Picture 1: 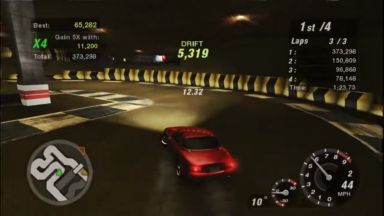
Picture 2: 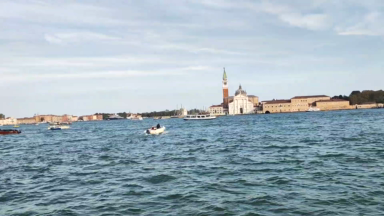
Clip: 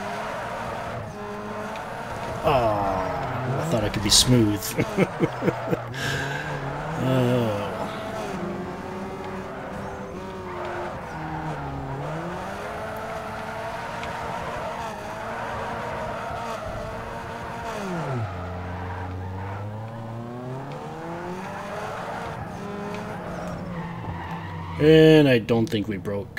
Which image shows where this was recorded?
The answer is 1